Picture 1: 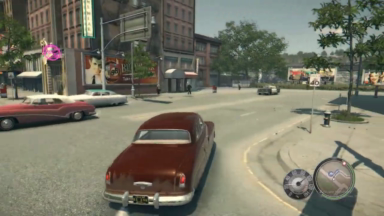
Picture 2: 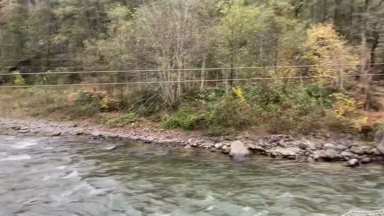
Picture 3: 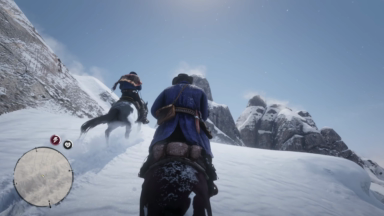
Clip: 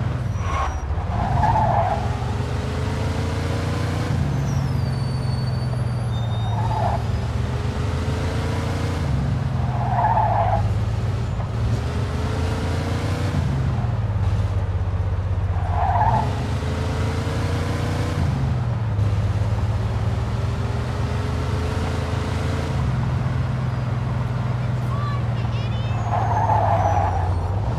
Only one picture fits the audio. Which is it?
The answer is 1